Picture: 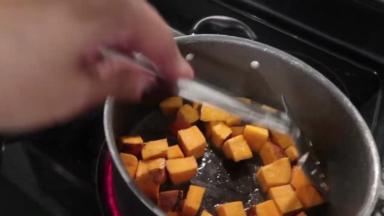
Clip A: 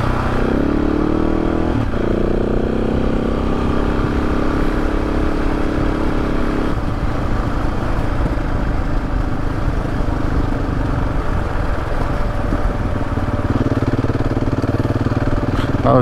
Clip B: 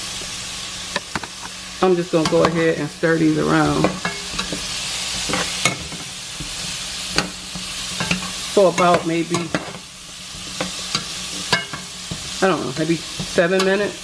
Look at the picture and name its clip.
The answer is B